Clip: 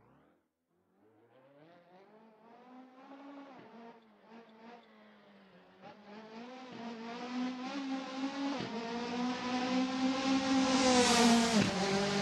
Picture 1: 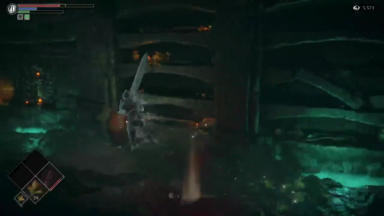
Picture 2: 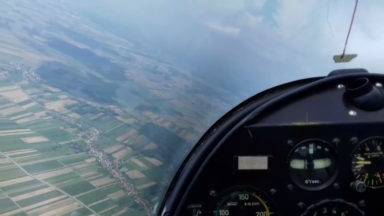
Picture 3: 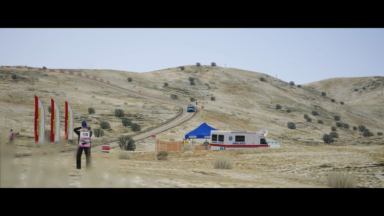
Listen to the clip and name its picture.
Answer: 3